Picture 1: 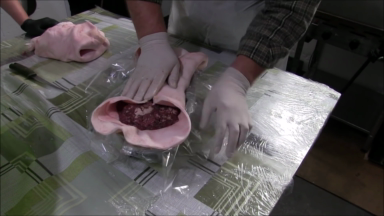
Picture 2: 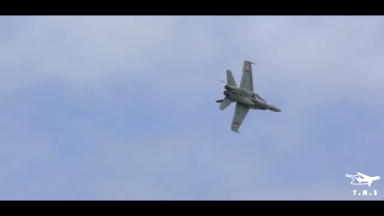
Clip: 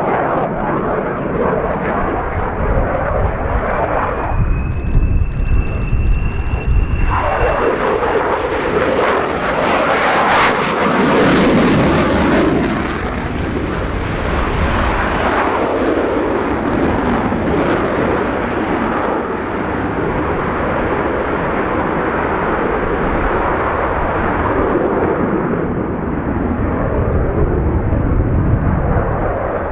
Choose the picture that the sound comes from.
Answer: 2